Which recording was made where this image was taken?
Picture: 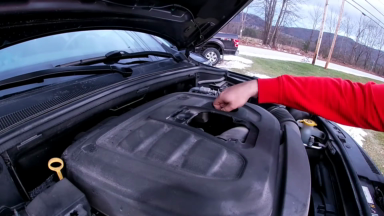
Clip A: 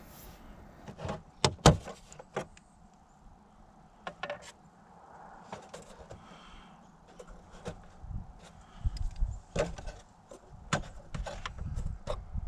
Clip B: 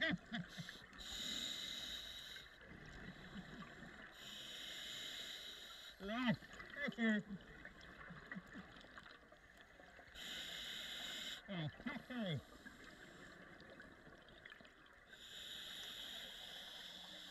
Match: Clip A